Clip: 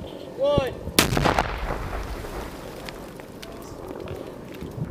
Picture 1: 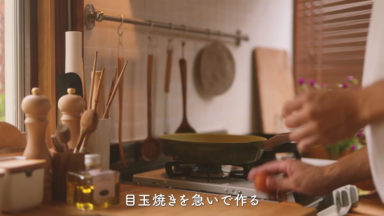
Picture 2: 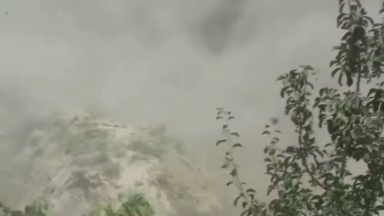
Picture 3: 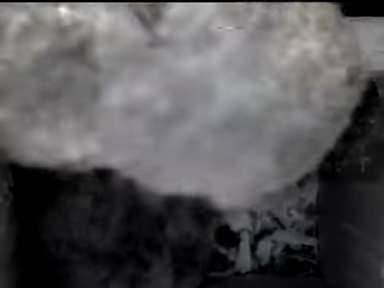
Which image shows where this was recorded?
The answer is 2